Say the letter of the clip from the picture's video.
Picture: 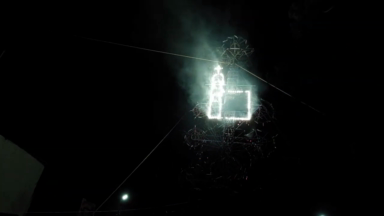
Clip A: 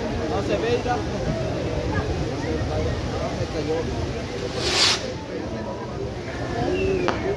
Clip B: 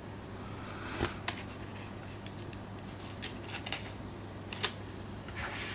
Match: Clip A